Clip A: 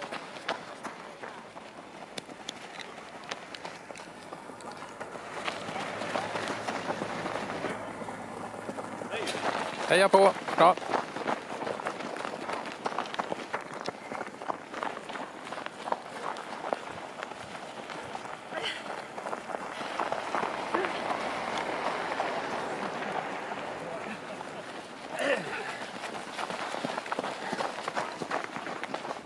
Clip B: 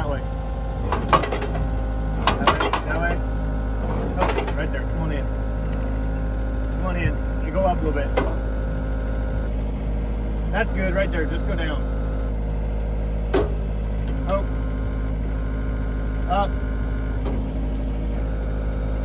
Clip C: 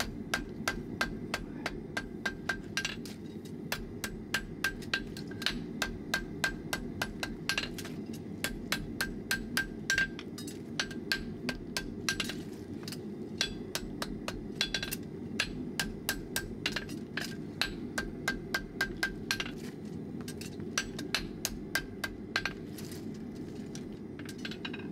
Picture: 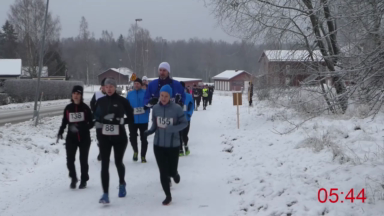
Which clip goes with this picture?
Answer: A